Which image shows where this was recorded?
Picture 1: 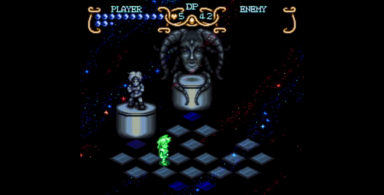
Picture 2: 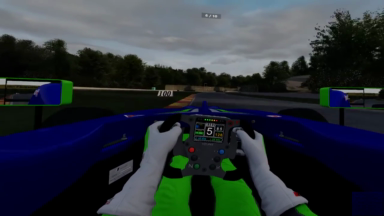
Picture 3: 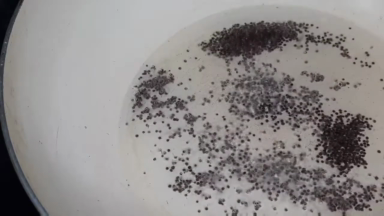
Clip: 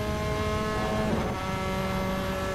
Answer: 2